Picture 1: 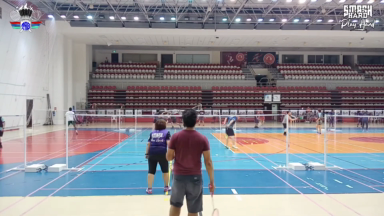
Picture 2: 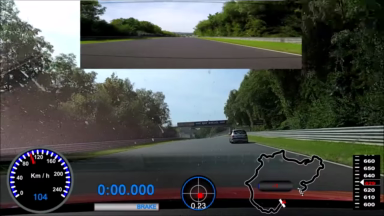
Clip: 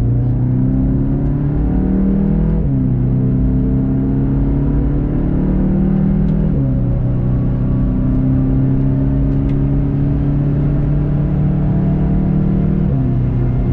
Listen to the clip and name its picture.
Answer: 2